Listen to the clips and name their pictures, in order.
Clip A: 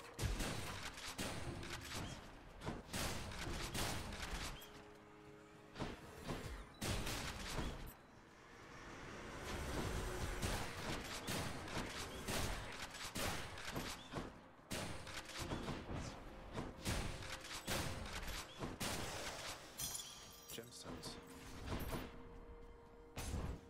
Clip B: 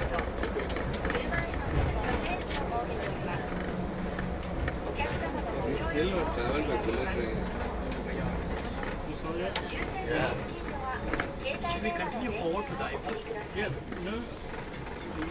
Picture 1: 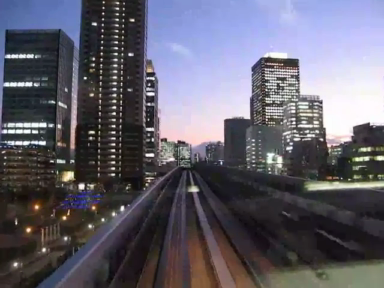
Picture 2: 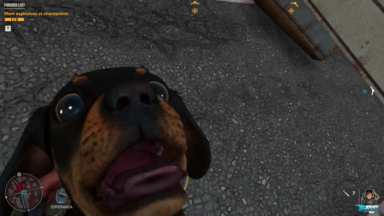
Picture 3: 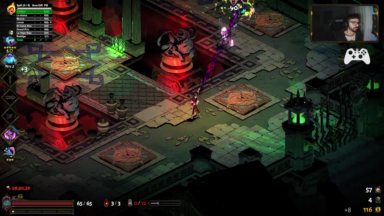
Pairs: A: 3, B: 1